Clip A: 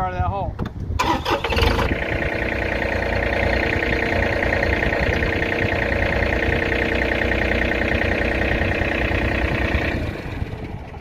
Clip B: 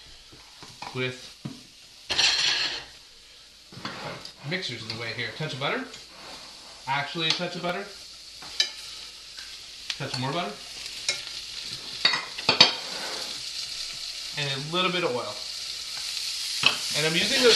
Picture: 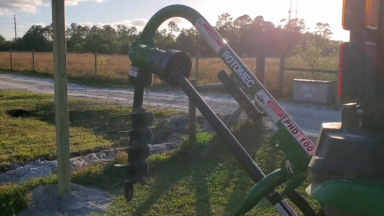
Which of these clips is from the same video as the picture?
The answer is A